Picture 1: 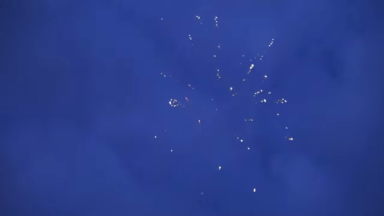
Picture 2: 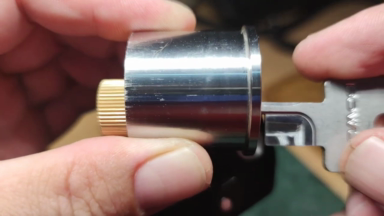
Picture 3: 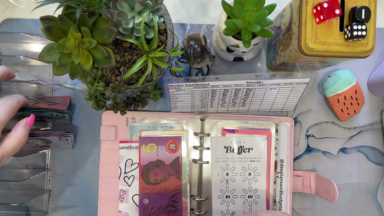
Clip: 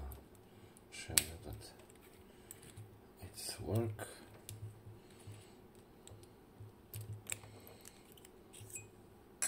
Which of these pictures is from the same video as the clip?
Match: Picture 2